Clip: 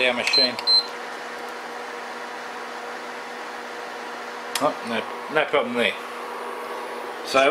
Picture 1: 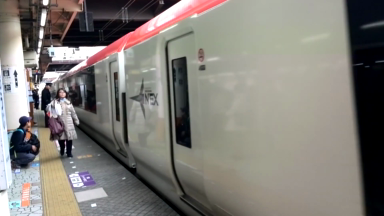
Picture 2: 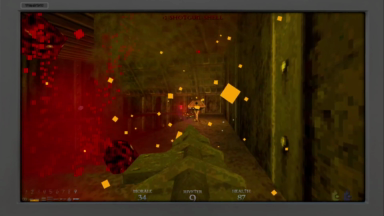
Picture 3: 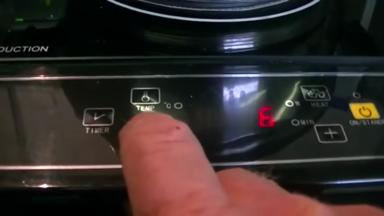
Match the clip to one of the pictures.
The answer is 3